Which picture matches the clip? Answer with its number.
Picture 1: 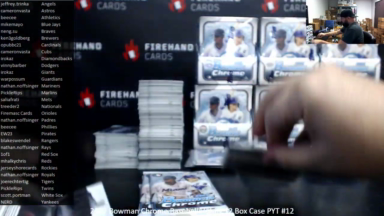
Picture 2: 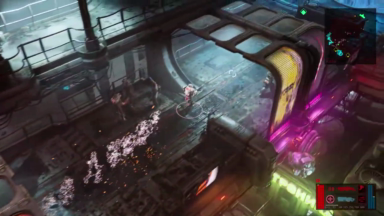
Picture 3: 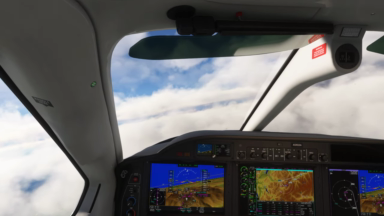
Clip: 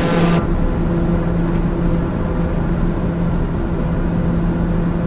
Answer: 3